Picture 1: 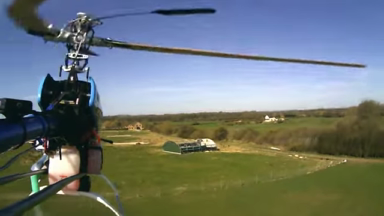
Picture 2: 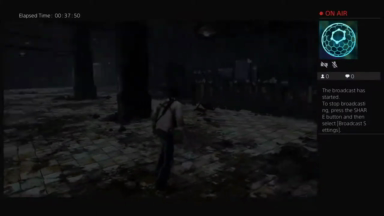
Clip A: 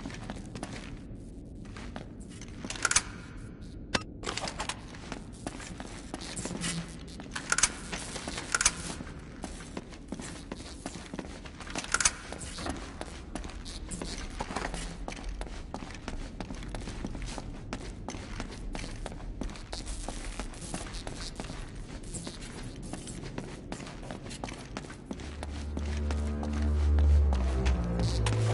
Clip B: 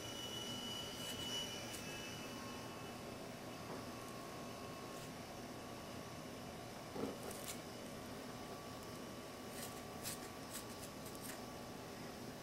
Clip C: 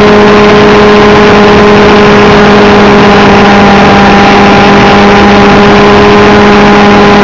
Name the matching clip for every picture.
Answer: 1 C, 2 A